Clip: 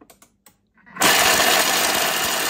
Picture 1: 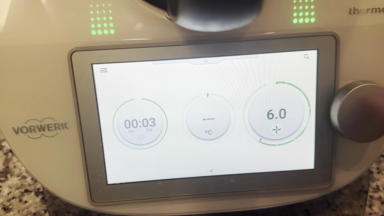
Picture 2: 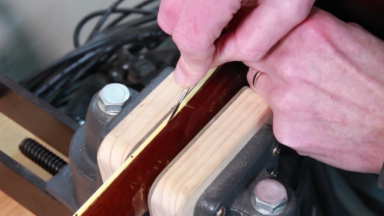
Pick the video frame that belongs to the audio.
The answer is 1